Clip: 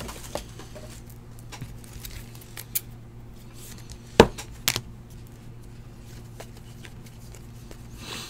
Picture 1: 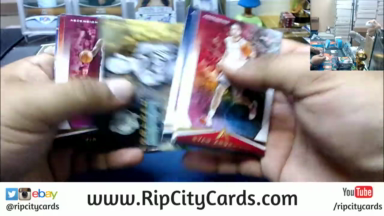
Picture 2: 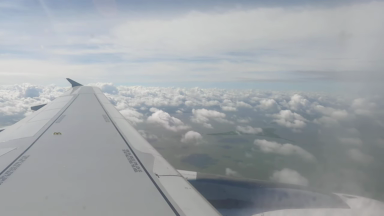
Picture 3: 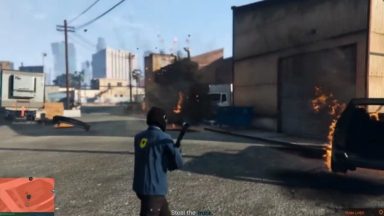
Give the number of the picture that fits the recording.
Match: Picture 1